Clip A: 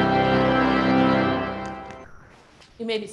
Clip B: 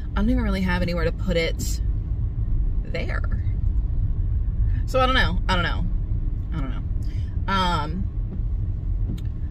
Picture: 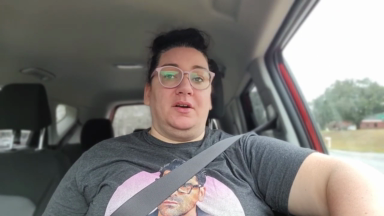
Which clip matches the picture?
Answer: B